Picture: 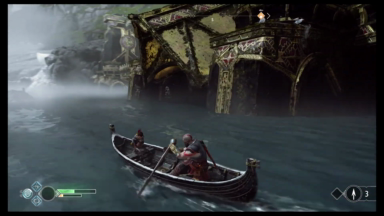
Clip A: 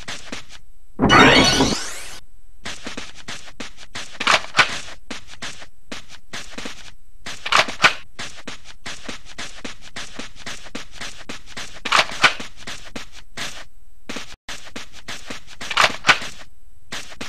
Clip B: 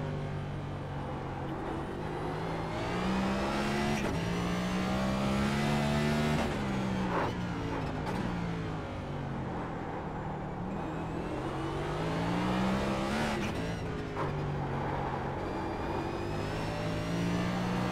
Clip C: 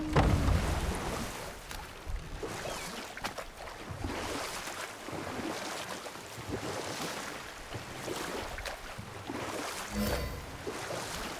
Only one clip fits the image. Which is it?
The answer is C